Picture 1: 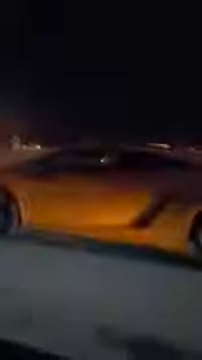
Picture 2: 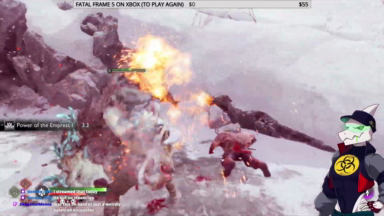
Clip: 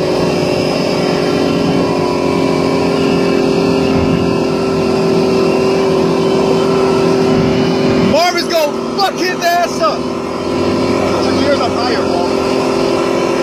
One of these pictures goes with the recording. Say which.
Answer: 1